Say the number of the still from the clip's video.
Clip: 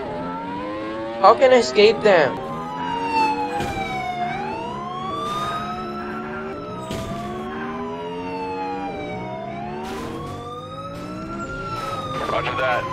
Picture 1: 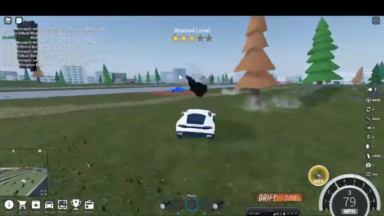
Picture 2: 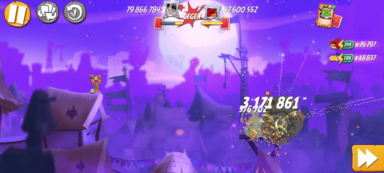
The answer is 1